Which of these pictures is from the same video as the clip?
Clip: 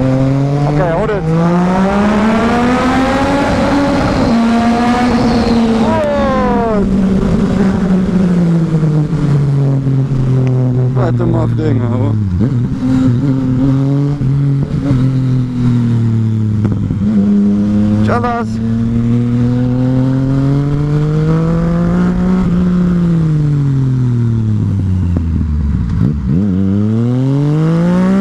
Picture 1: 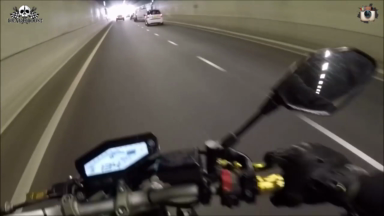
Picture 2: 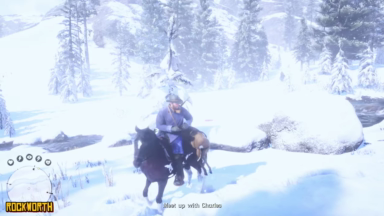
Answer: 1